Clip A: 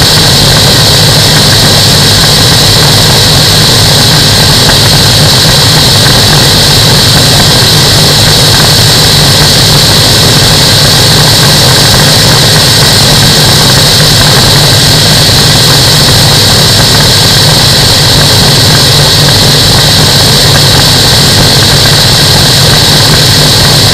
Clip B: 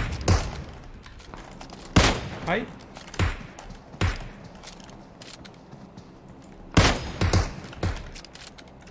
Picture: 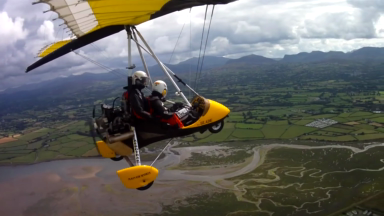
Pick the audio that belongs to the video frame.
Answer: A